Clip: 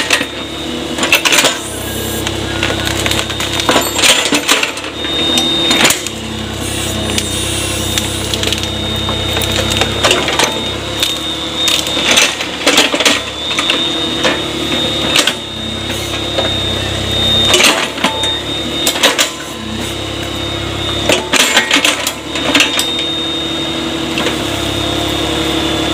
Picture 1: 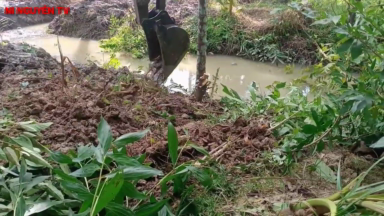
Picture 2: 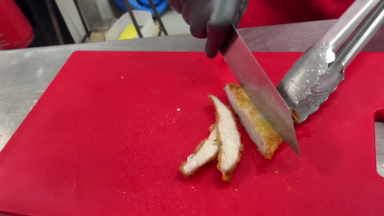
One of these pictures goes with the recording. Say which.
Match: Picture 1